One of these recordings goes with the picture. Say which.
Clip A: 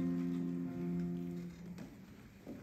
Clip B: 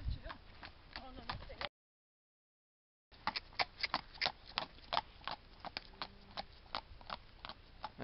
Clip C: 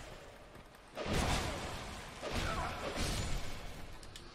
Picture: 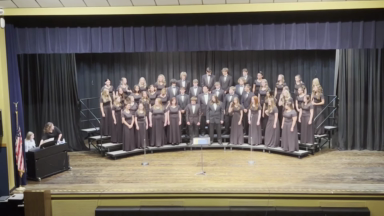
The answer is A